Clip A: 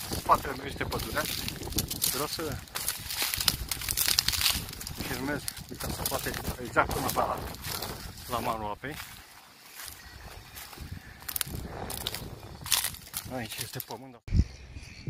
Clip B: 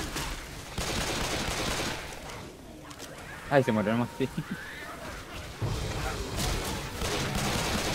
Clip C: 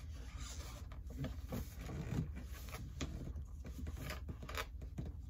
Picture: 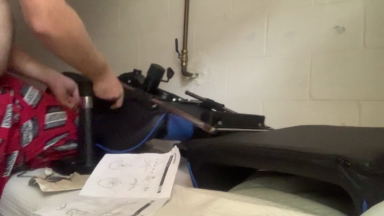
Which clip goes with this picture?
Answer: C